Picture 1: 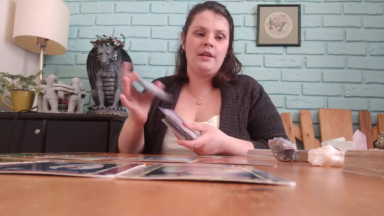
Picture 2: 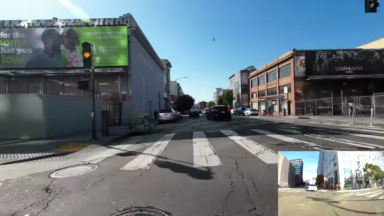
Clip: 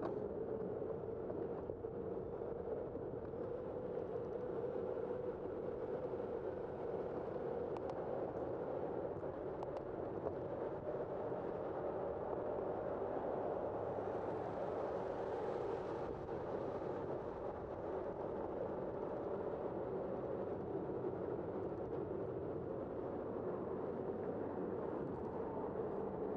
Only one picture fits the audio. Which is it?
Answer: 2